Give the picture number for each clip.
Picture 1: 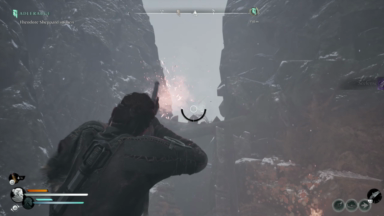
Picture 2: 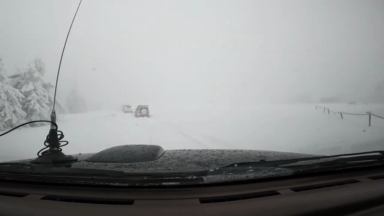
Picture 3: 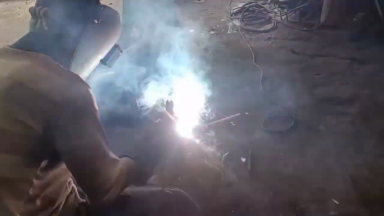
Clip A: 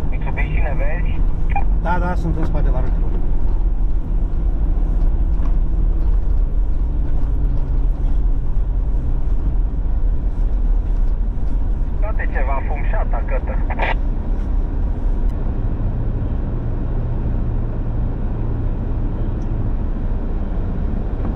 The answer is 2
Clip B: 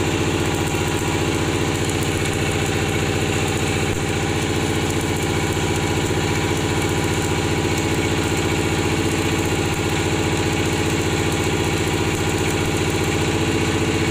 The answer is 3